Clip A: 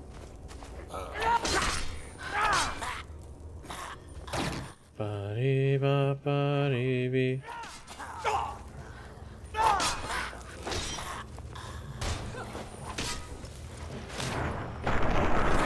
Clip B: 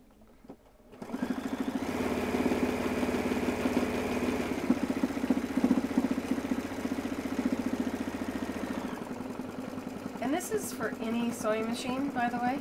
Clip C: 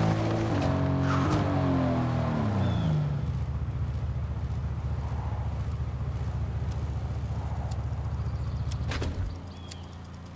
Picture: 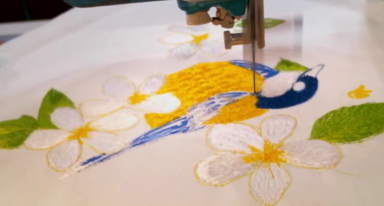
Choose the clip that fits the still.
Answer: B